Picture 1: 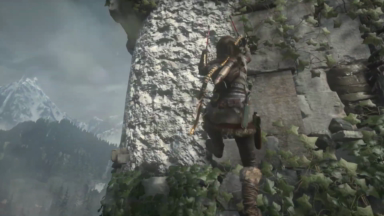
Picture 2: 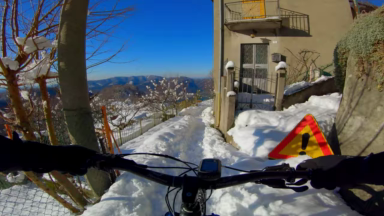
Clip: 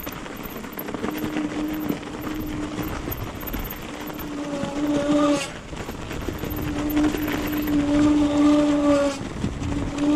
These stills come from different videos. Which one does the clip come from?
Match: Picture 2